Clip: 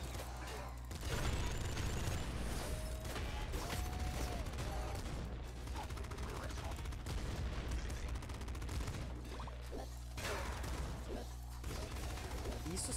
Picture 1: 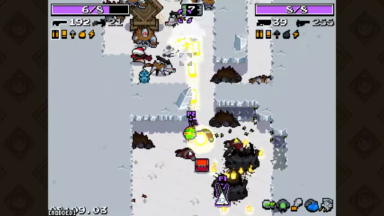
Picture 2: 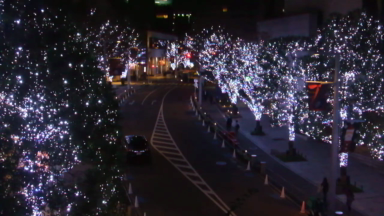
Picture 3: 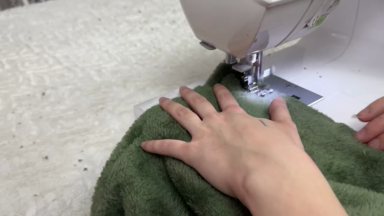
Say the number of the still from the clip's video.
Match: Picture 1